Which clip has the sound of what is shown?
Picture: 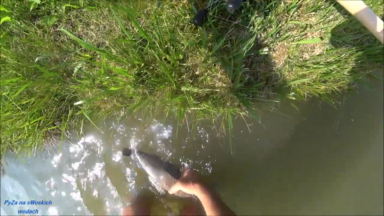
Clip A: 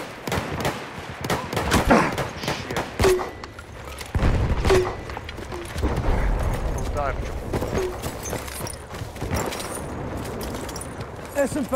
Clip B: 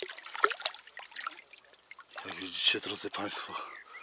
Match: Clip B